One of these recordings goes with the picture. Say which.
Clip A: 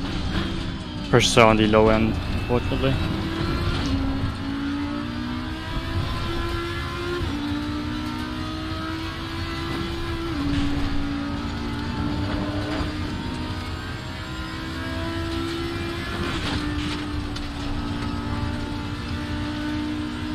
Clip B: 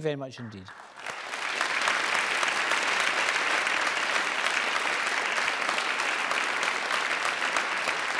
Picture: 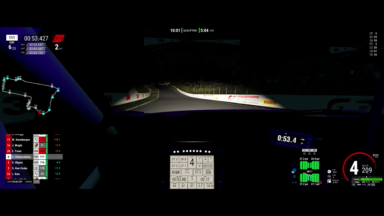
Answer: A